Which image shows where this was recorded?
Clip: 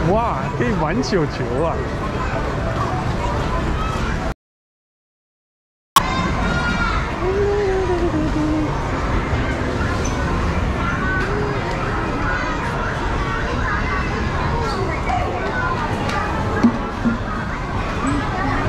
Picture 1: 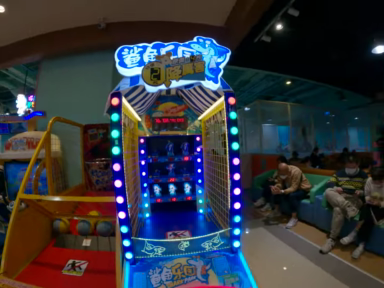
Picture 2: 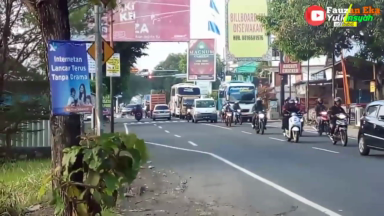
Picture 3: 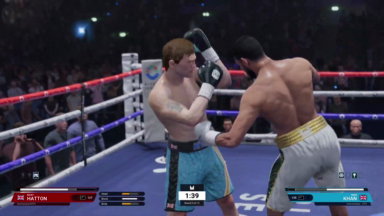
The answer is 1